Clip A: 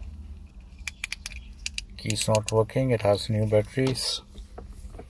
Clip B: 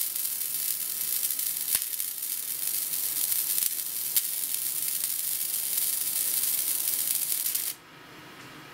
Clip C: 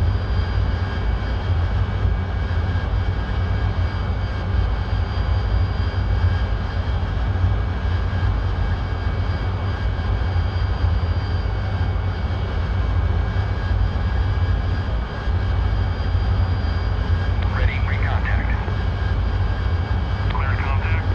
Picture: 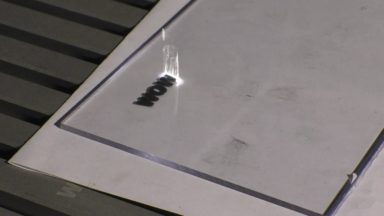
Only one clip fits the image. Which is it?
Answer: B